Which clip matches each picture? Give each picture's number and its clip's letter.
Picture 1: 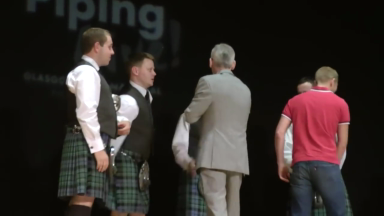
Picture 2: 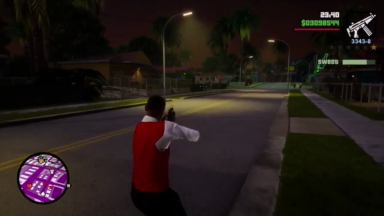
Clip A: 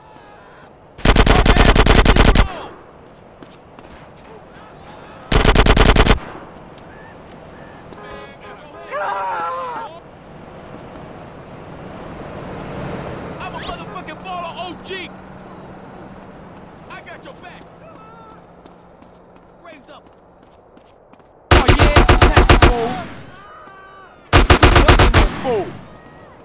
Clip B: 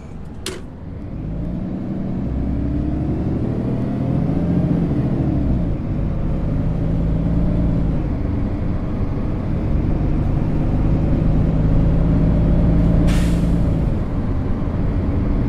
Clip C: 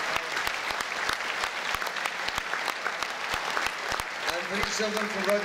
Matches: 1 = C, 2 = A